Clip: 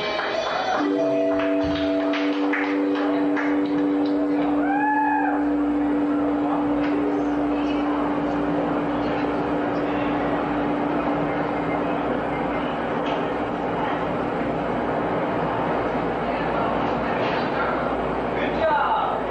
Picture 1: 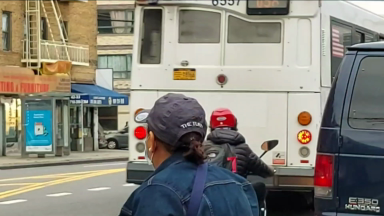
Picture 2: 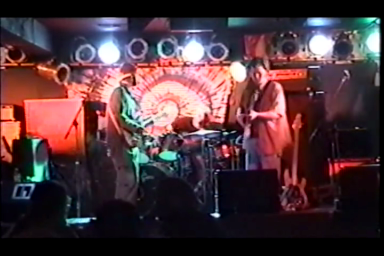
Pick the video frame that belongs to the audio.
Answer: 2